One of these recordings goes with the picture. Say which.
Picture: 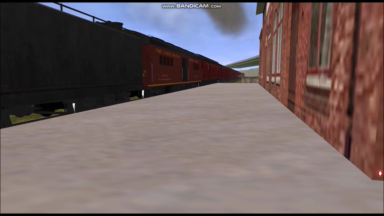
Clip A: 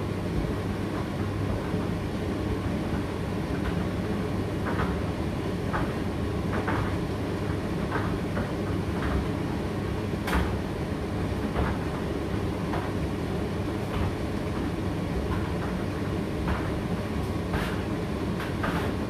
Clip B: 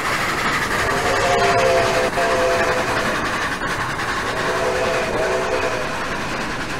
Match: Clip B